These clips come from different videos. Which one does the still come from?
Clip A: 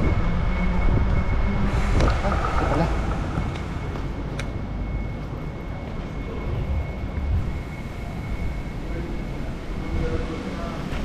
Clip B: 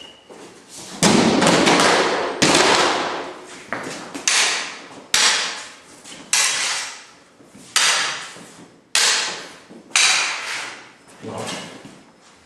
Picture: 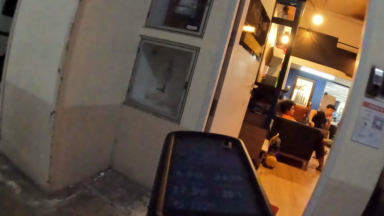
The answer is A